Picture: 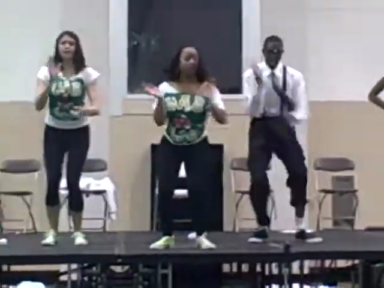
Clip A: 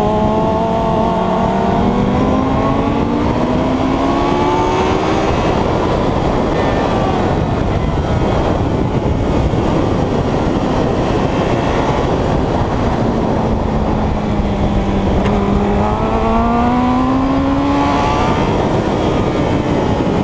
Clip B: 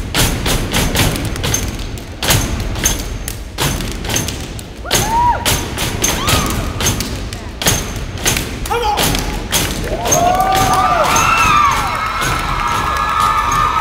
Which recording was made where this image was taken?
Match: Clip B